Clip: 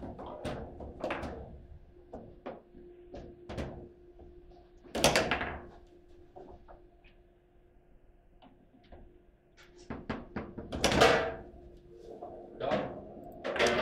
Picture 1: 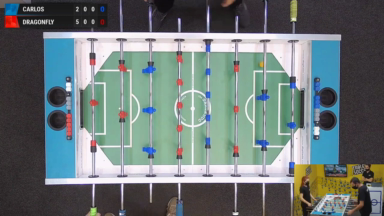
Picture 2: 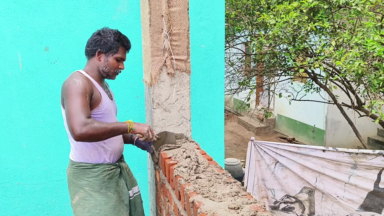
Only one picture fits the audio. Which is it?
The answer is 1